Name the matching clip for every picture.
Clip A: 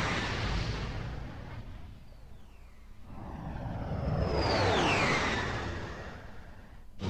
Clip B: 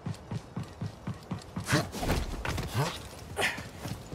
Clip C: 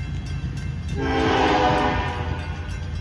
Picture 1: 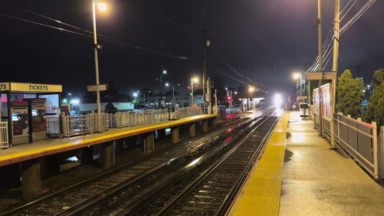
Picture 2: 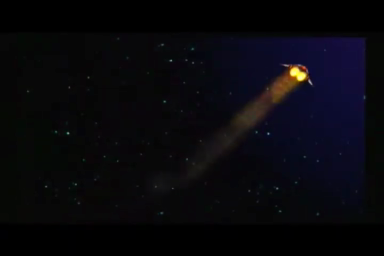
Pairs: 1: C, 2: A